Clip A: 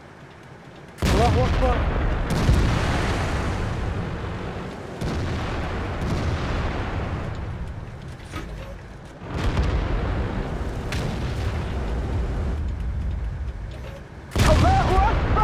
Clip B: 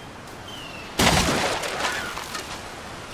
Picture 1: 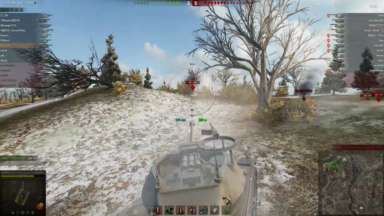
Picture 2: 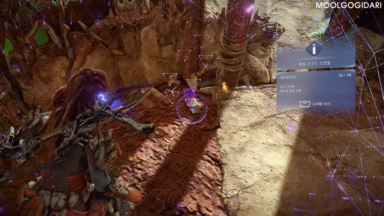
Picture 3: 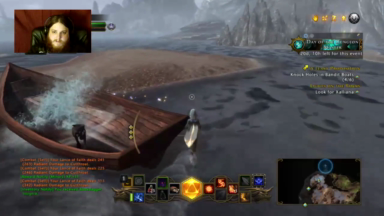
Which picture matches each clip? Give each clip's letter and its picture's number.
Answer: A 1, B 3